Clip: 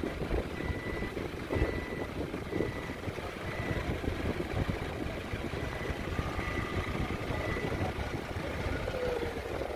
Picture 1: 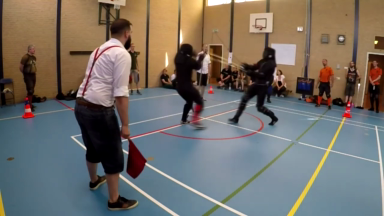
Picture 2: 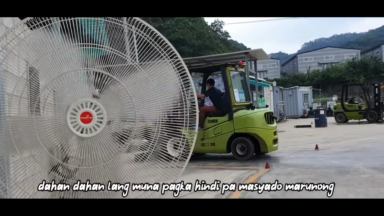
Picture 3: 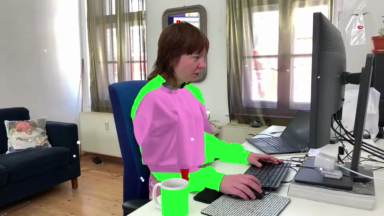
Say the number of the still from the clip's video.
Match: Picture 2